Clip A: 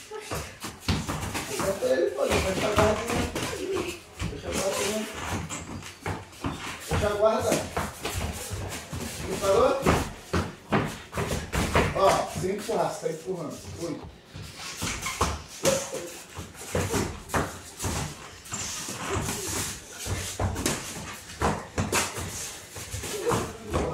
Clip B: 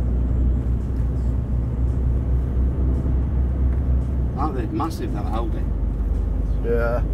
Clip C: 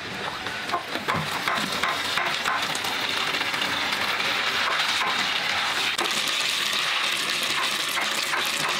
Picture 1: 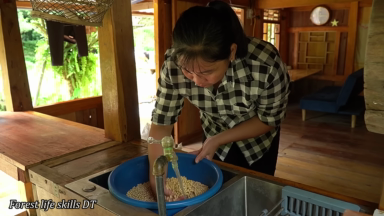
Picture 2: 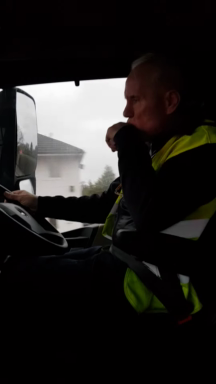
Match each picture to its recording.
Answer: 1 C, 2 B